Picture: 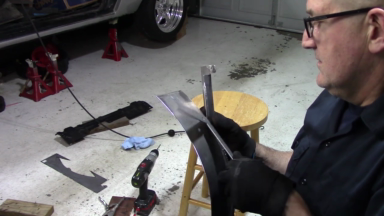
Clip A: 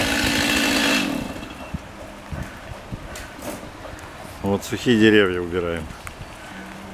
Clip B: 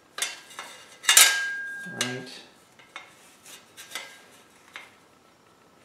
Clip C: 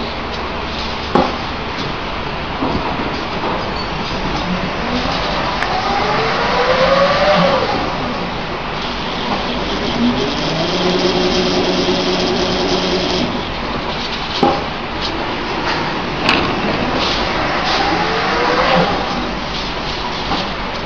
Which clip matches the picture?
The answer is B